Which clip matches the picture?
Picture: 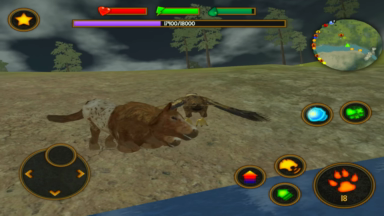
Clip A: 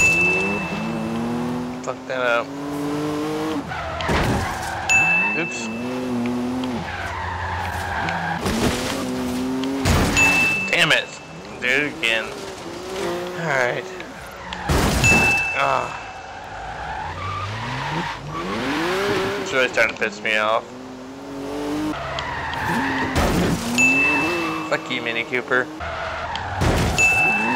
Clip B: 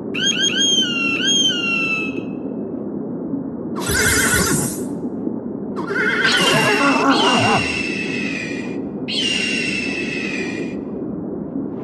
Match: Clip B